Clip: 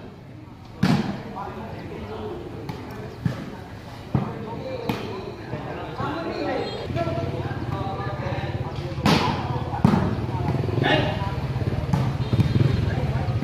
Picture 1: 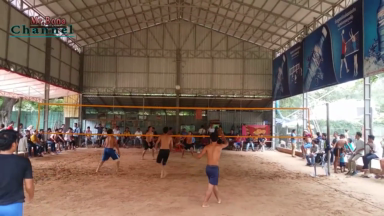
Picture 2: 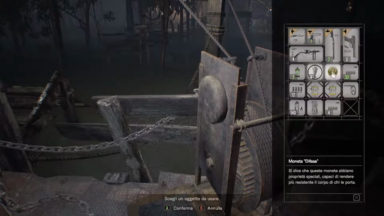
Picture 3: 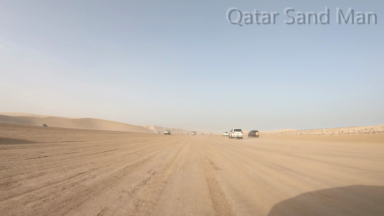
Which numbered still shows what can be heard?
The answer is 1